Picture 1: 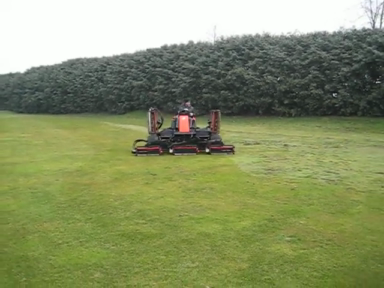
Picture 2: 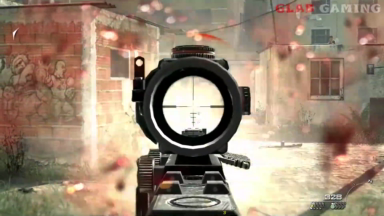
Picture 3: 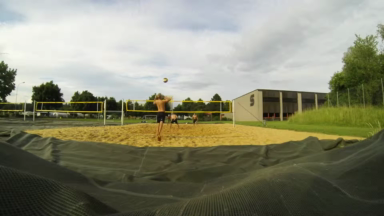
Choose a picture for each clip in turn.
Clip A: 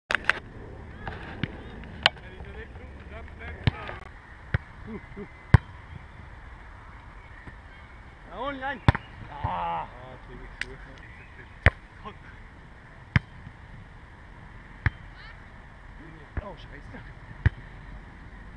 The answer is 3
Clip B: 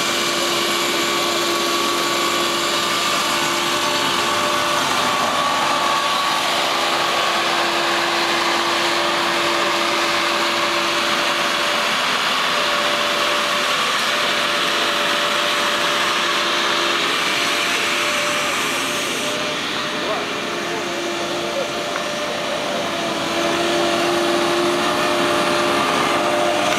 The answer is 1